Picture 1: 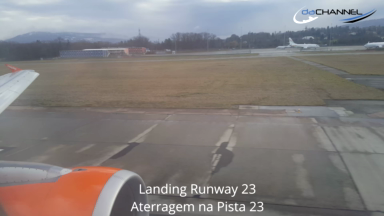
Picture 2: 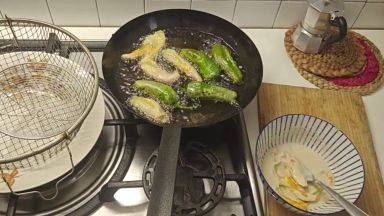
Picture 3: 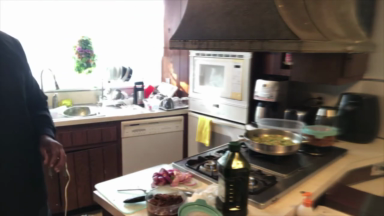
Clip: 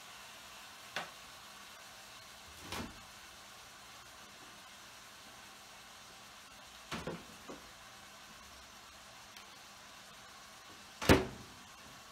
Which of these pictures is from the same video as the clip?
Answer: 3